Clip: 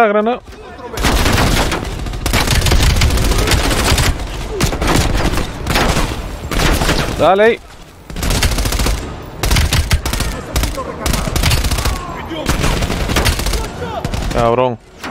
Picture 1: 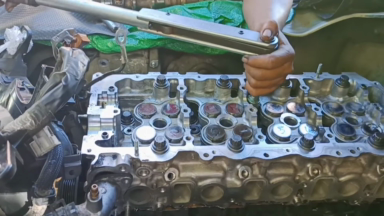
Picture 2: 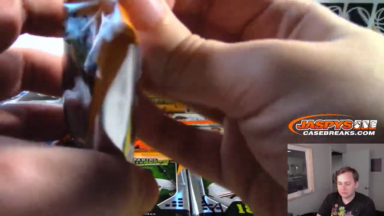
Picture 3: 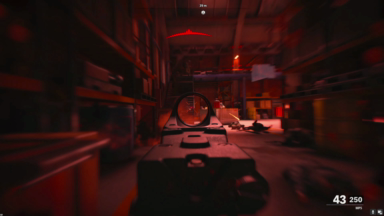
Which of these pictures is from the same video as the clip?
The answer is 3